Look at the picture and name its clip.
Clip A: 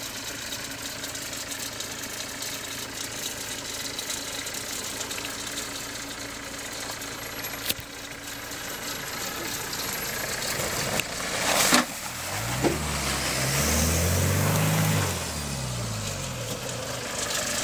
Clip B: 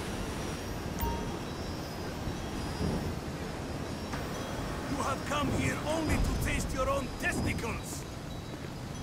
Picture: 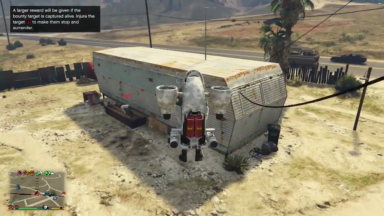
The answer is B